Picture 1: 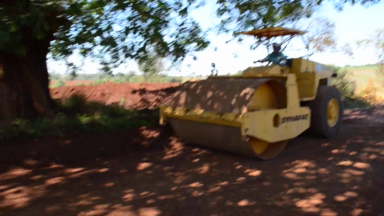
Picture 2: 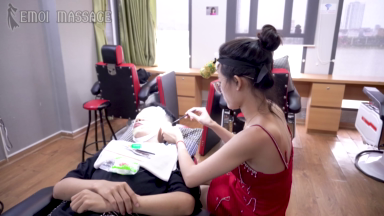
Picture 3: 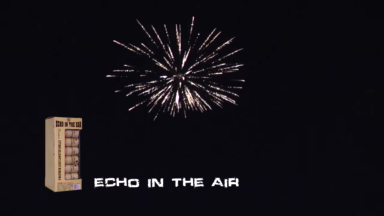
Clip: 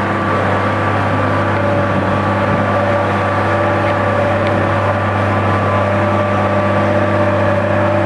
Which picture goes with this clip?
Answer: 1